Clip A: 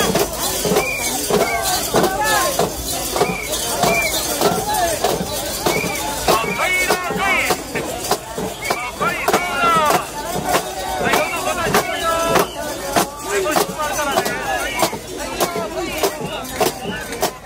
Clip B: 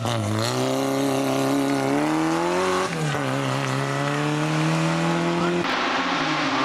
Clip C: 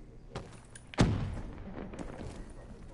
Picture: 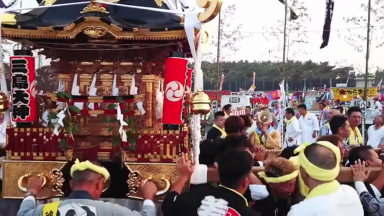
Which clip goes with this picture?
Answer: A